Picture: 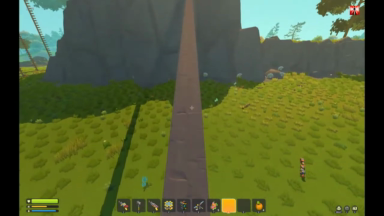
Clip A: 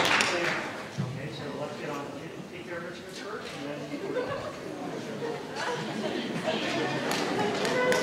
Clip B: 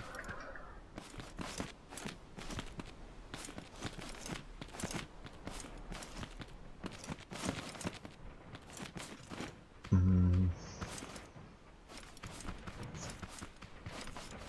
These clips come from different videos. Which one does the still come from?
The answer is B